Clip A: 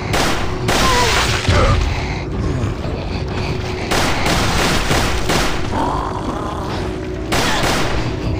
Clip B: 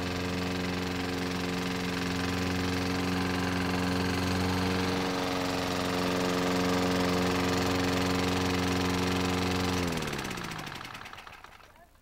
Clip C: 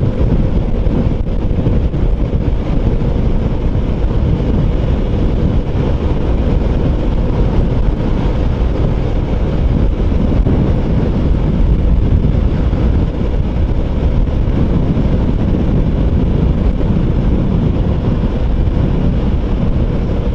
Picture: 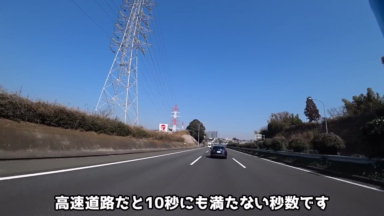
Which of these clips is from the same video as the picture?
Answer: C